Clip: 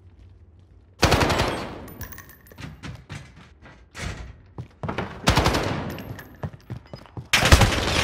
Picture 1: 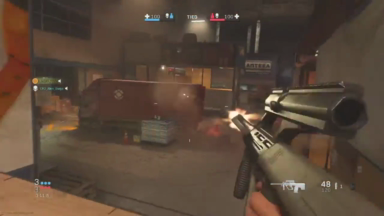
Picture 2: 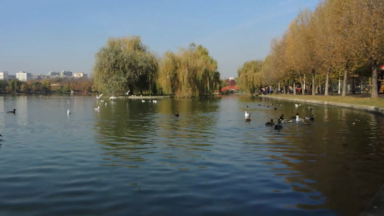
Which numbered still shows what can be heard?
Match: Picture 1